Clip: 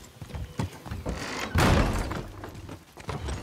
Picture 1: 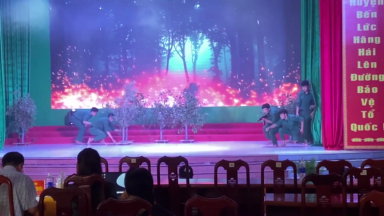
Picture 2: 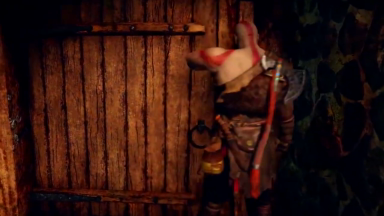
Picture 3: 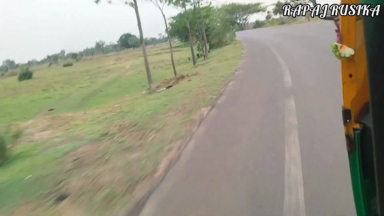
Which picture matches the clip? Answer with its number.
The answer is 2